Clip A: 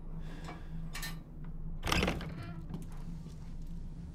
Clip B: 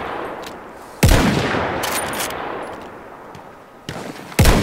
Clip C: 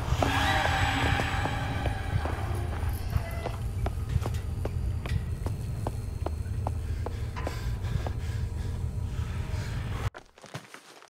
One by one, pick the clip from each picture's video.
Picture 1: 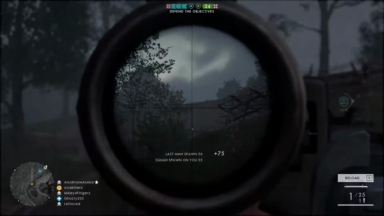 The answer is B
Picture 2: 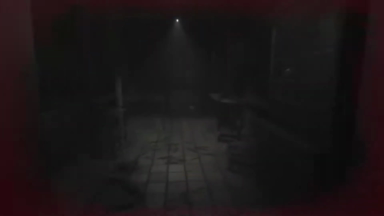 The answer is C